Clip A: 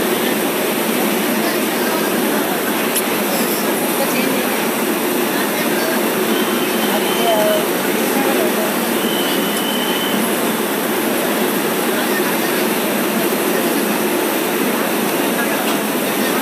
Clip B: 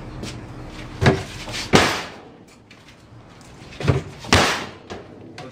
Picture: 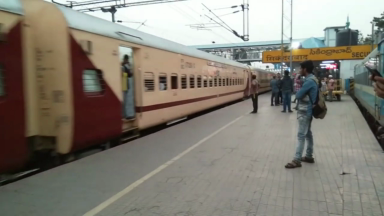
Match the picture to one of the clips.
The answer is A